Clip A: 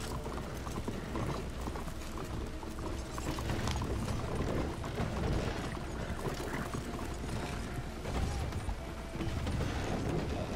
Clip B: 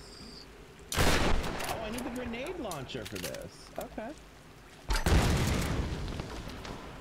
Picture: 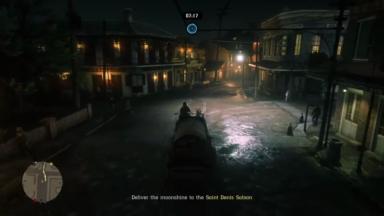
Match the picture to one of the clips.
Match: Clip A